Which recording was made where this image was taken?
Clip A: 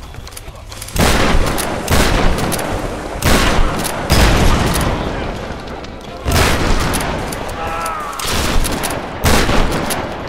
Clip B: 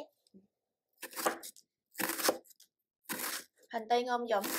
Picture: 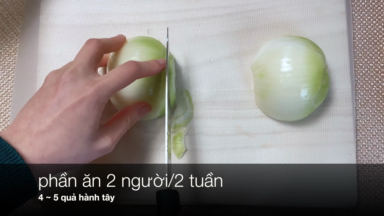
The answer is B